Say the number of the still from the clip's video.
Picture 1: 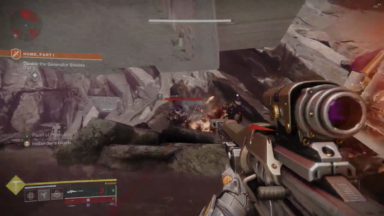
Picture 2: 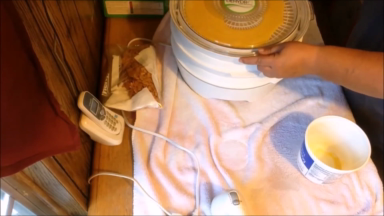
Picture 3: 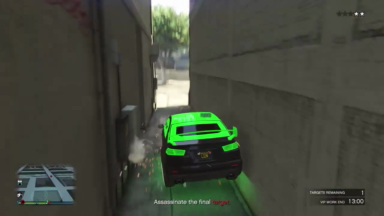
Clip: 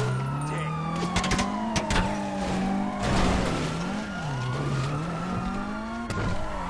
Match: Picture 3